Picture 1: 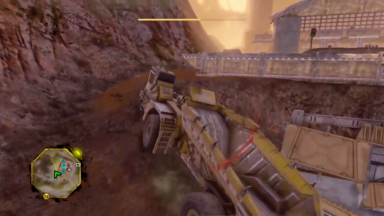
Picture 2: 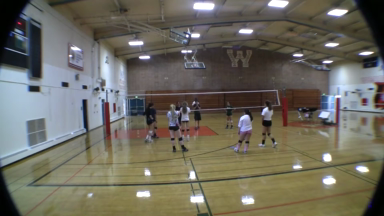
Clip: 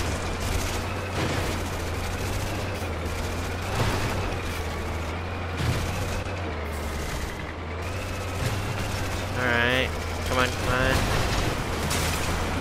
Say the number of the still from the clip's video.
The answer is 1